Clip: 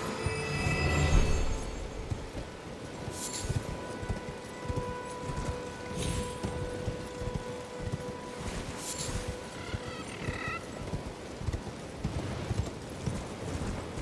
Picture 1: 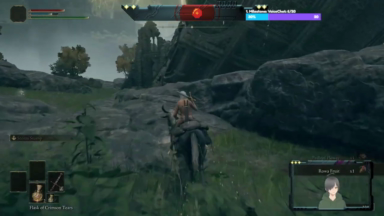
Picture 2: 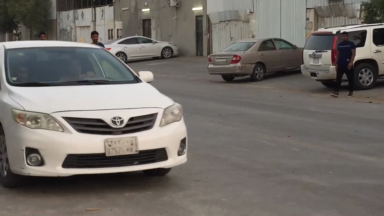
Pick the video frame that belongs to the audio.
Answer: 1